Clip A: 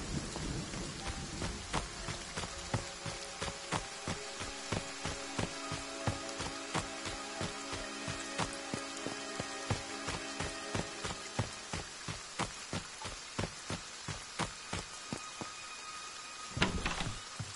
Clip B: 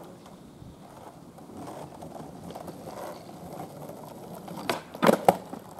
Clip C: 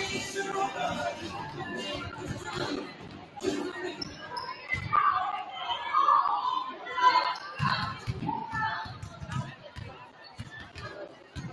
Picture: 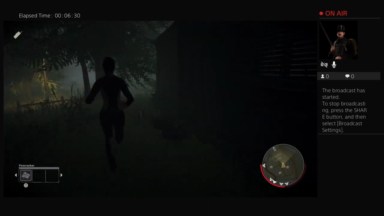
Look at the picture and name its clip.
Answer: A